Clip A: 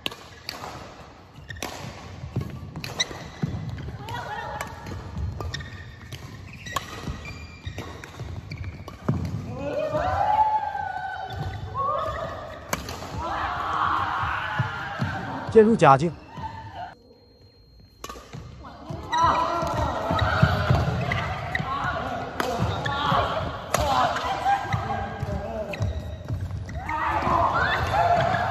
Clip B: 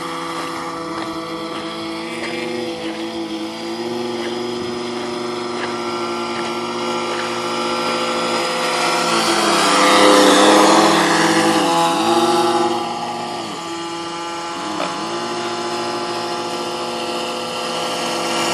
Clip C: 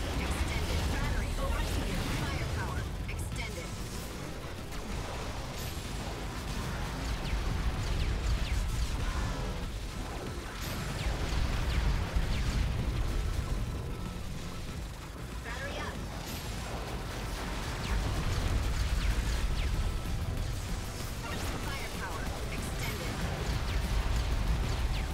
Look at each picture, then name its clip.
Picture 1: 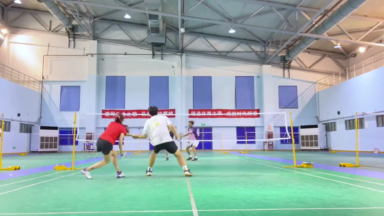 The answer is A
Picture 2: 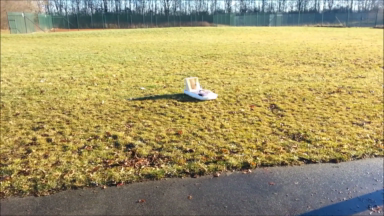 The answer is B